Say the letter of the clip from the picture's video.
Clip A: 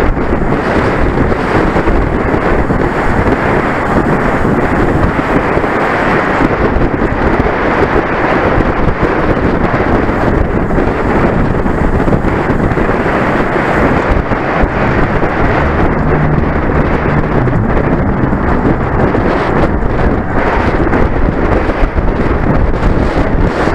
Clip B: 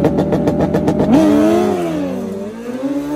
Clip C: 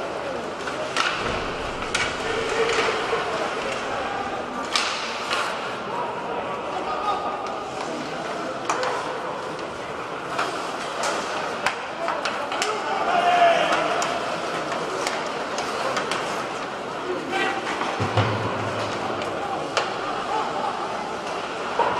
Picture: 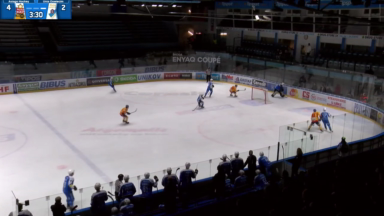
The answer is C